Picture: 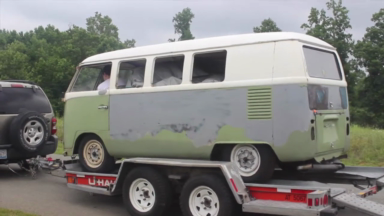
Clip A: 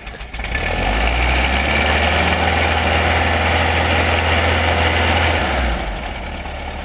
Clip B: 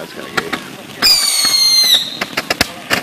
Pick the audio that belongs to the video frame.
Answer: A